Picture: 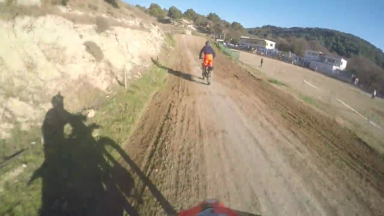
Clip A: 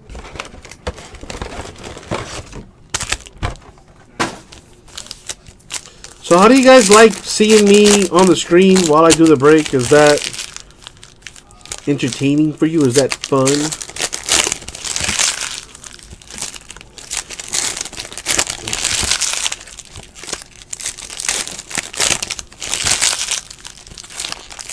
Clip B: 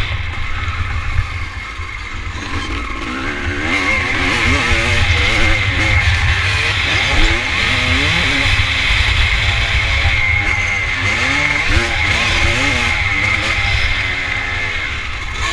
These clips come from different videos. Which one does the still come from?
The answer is B